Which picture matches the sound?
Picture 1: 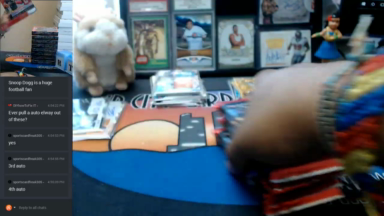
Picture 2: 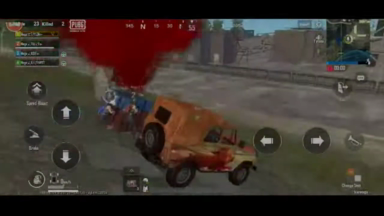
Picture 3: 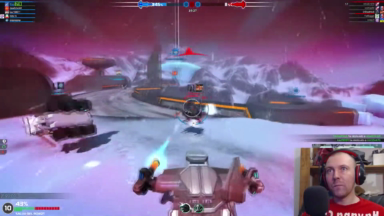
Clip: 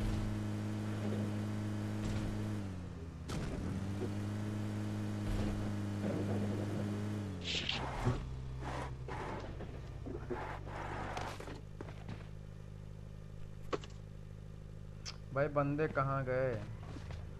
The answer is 2